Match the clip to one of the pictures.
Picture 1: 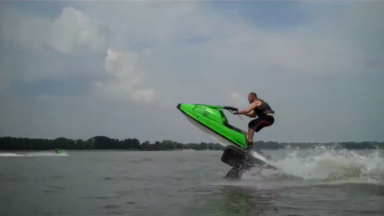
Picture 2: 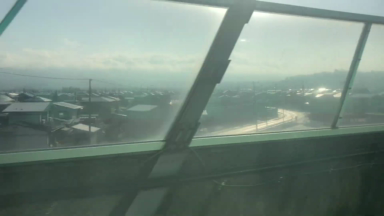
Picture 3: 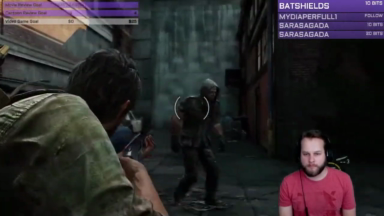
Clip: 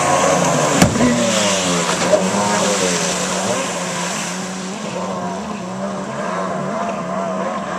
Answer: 1